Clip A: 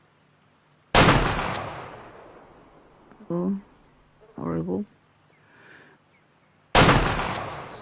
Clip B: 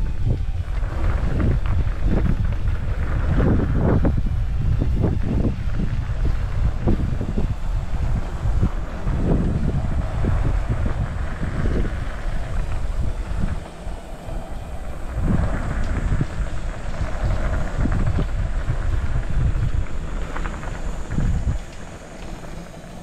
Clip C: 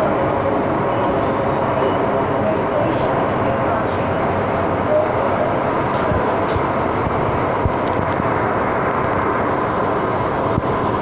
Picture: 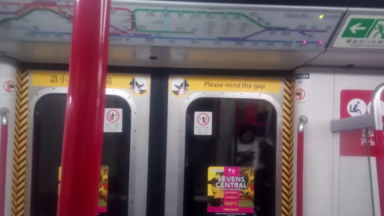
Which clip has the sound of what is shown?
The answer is C